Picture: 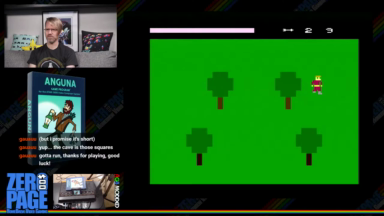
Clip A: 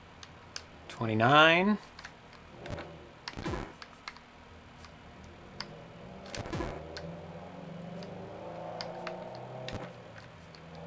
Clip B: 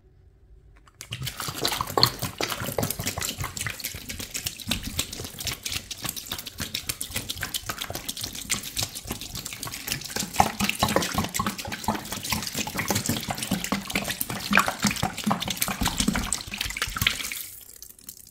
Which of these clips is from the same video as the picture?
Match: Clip A